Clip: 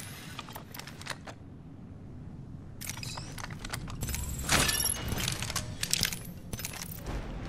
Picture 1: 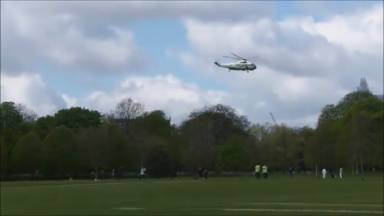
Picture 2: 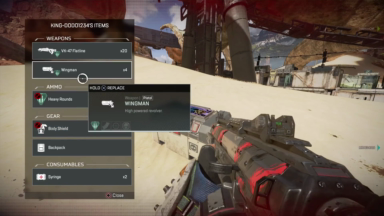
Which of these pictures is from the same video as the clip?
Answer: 2